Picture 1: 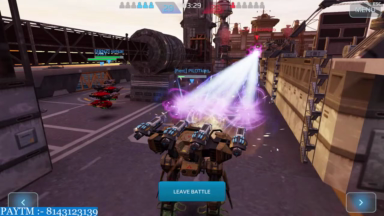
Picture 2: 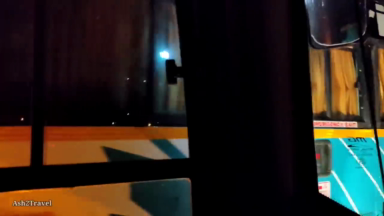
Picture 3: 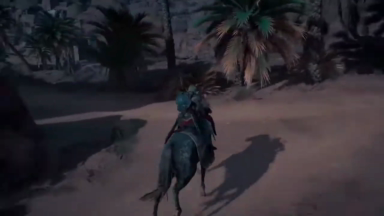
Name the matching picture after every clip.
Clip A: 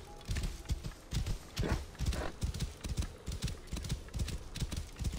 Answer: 3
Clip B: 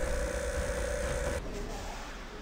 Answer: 1